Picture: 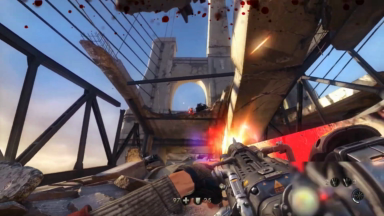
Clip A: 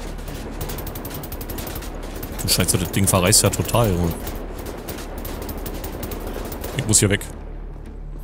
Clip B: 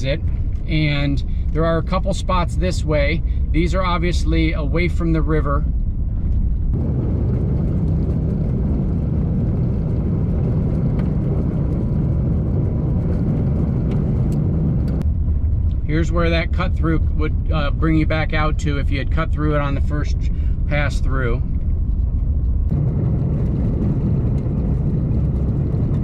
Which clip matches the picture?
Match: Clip A